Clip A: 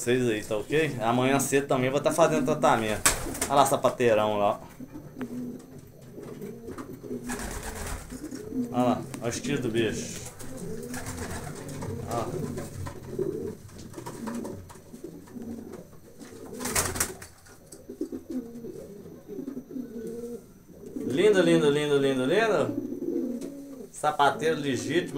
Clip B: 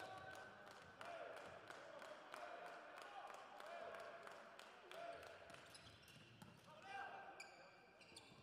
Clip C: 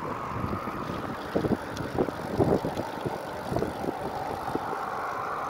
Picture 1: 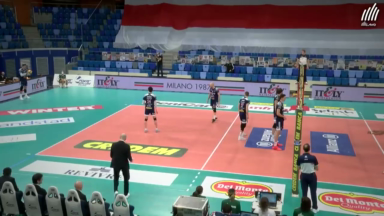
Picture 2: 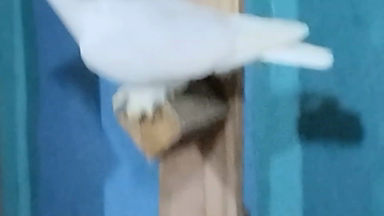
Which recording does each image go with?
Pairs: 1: B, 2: A